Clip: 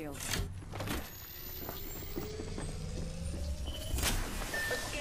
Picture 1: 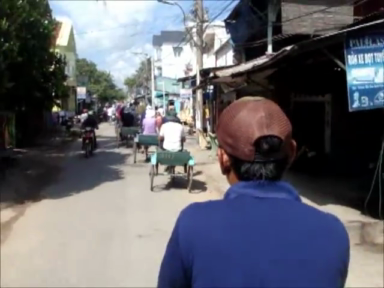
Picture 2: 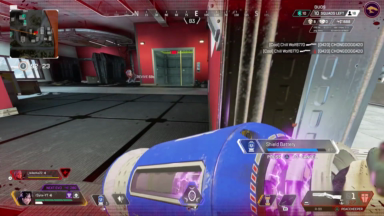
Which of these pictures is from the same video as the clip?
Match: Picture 2